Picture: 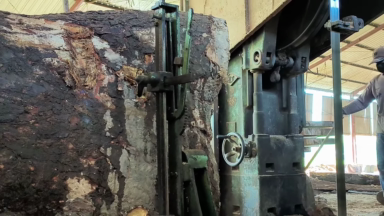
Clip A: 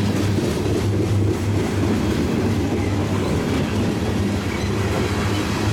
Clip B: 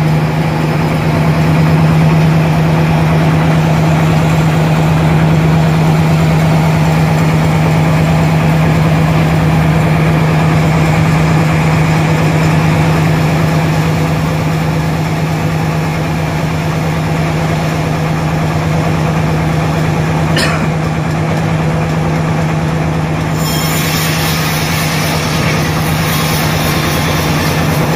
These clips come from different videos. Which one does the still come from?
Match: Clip B